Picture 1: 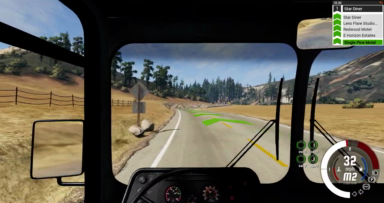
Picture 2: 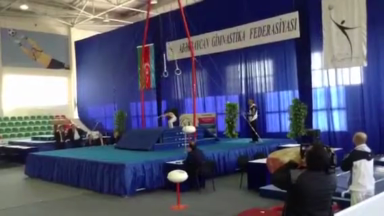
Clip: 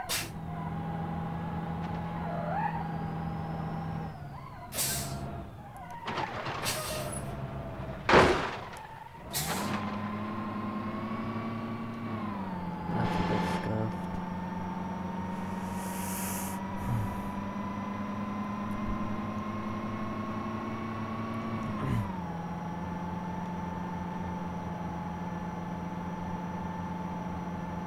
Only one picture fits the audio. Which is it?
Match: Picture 1